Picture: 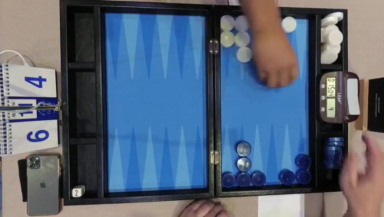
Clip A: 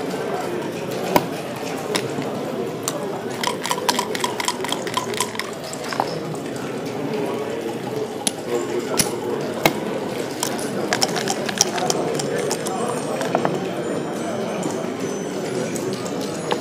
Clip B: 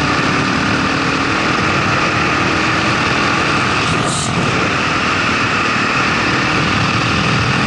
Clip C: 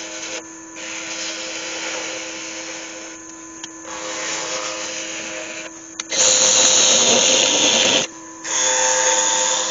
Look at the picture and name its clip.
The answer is A